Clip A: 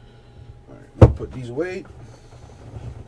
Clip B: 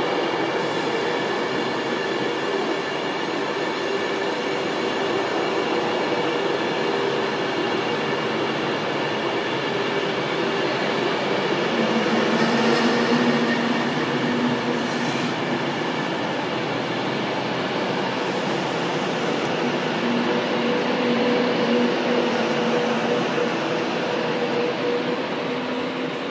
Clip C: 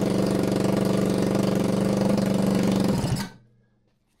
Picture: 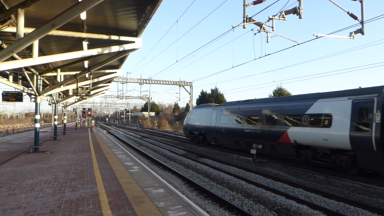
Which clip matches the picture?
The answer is B